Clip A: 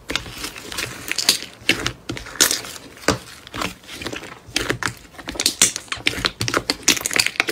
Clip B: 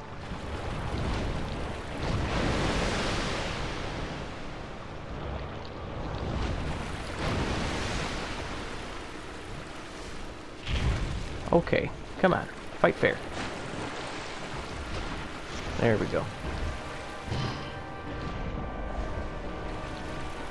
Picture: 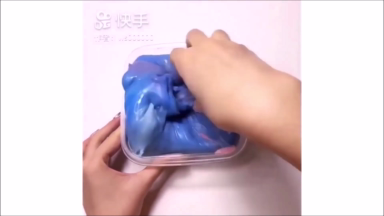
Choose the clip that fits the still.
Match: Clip A